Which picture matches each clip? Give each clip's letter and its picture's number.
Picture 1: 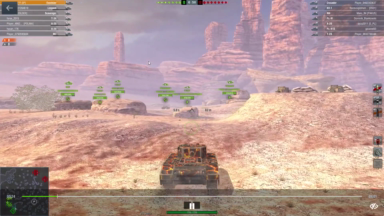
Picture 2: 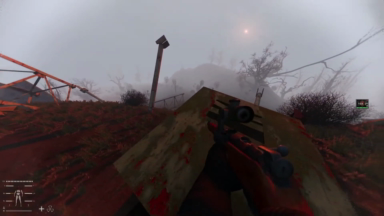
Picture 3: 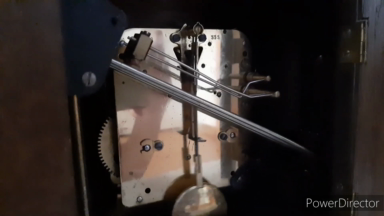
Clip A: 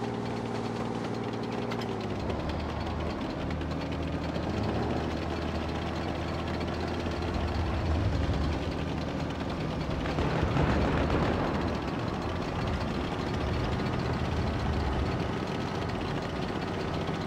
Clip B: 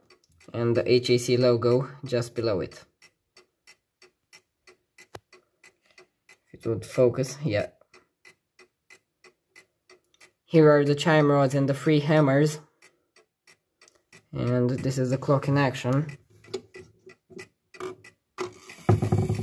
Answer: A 1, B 3